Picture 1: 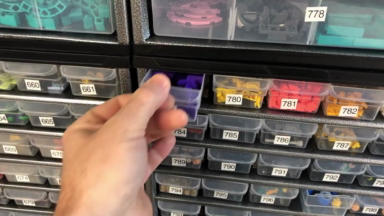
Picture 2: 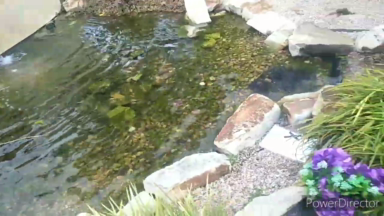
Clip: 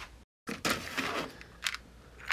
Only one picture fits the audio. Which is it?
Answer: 1